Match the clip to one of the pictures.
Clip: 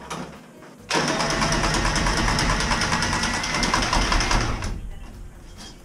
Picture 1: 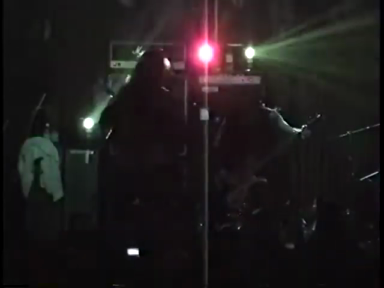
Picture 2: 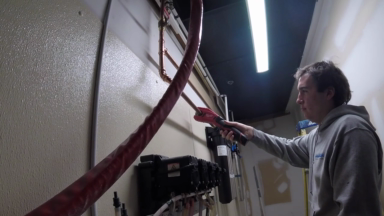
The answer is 2